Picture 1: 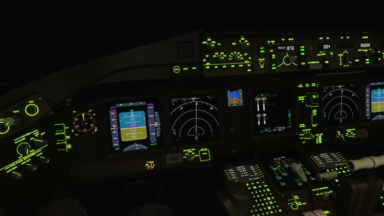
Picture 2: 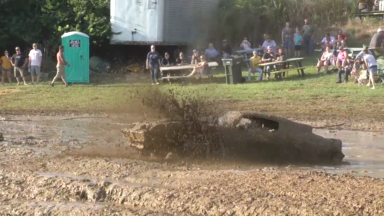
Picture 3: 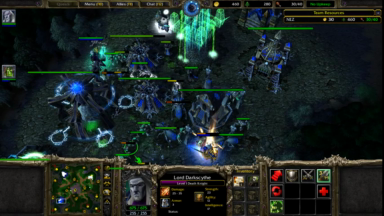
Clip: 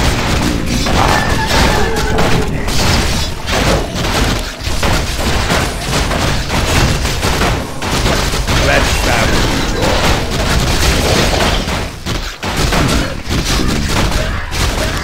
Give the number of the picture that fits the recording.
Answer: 3